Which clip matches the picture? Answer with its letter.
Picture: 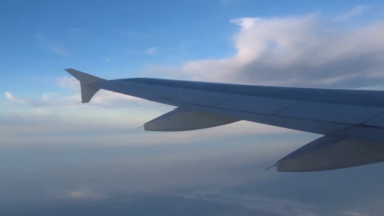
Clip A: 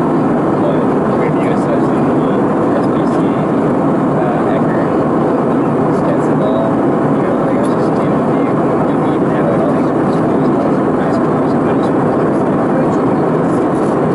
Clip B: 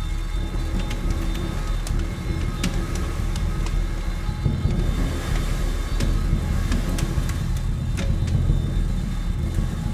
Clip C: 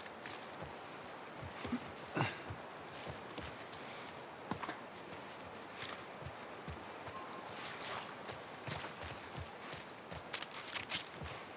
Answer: A